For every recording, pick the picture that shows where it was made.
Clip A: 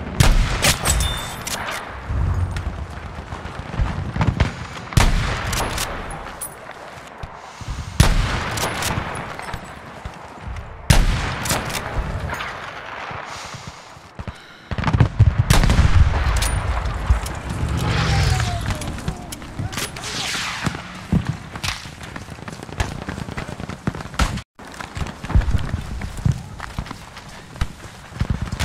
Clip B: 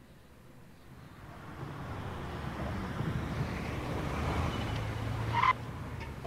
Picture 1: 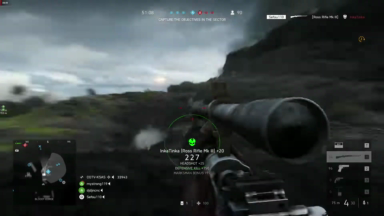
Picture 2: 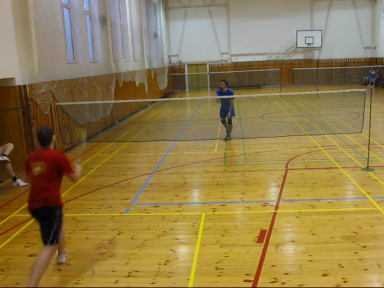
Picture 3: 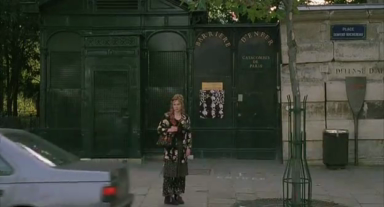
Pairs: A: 1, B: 3